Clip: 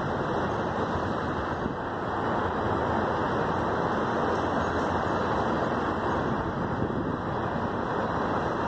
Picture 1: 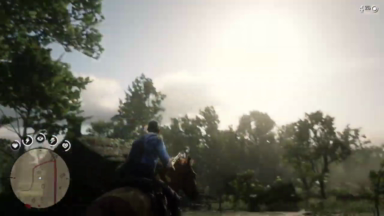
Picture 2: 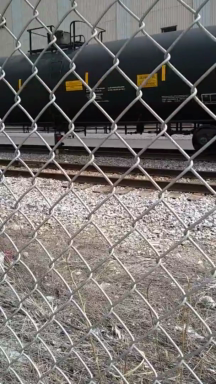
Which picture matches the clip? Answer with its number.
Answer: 2